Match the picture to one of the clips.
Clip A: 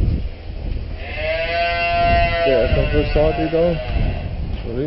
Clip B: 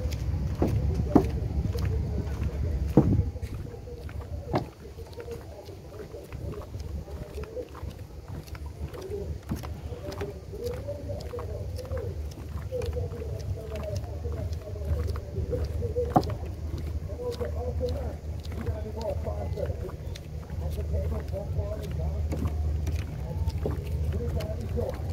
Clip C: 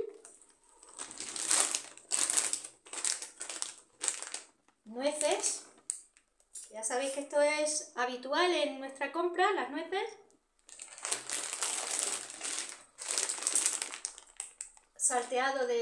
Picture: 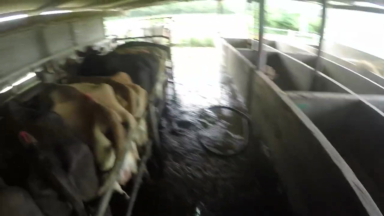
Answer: A